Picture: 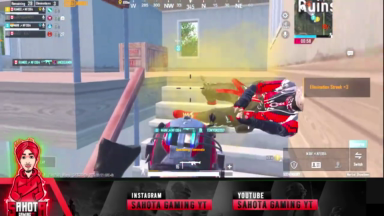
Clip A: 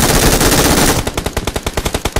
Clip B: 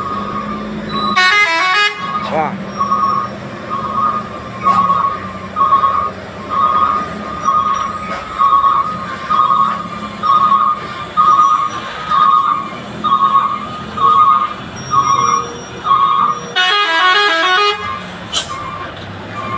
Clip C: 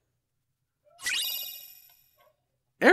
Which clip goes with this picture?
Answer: A